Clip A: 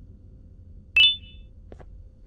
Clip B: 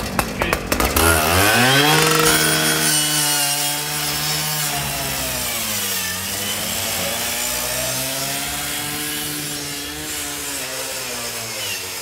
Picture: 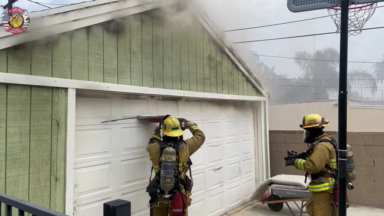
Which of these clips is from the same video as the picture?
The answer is B